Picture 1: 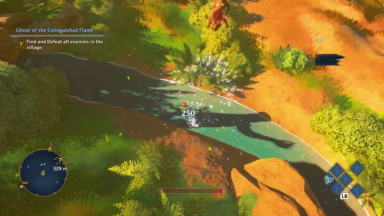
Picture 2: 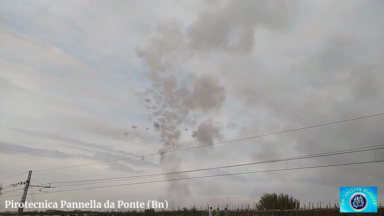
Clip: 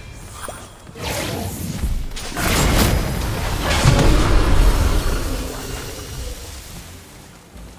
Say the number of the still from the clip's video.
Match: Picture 1